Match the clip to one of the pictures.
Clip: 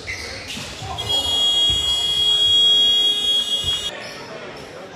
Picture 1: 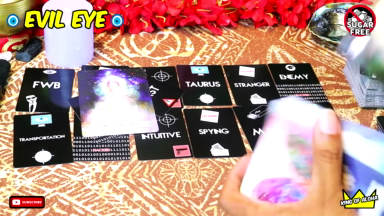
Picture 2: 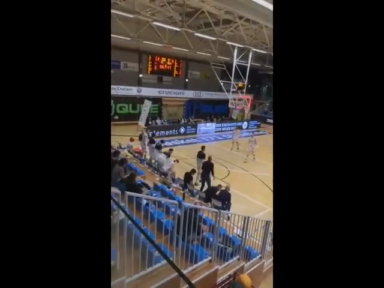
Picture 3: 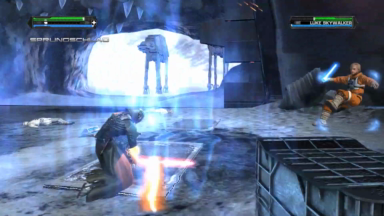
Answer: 2